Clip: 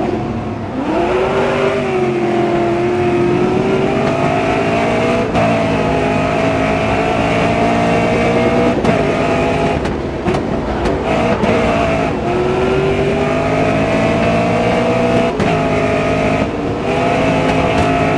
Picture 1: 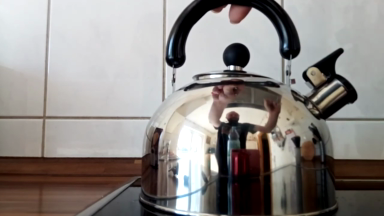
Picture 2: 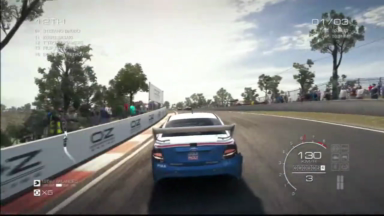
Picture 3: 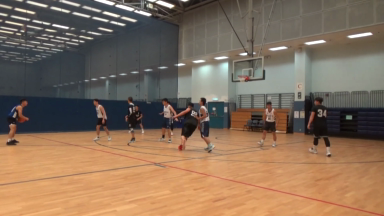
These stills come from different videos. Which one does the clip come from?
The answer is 2